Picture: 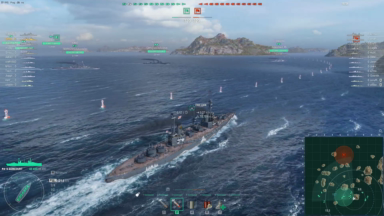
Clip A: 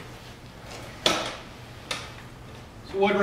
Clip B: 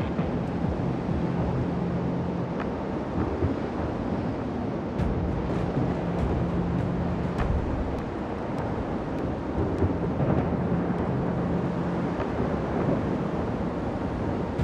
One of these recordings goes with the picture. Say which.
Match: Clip B